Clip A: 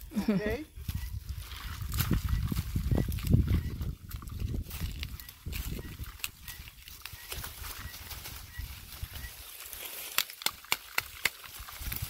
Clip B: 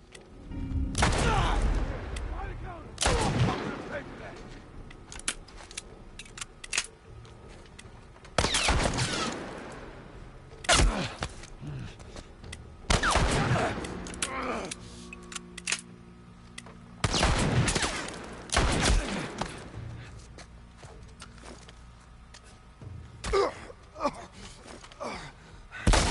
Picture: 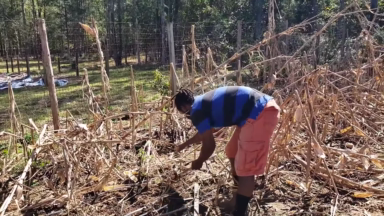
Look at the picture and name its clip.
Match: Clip A